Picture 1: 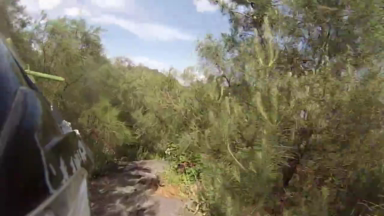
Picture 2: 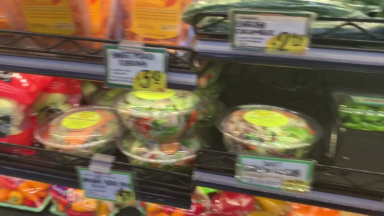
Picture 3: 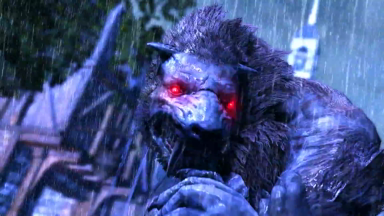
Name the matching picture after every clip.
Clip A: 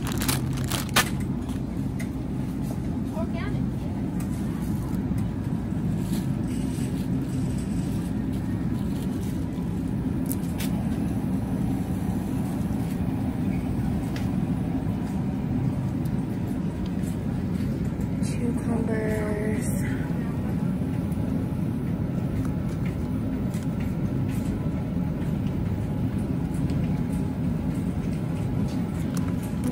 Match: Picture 2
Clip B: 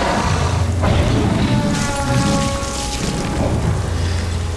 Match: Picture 3